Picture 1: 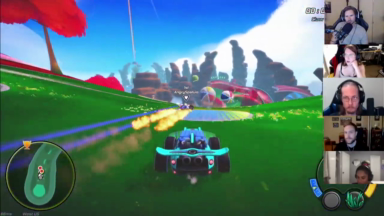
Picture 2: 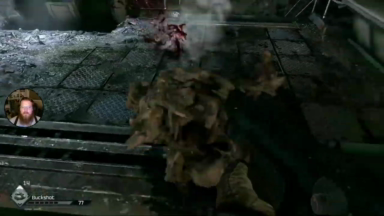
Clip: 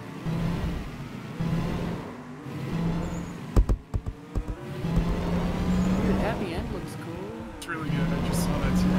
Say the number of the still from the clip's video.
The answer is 1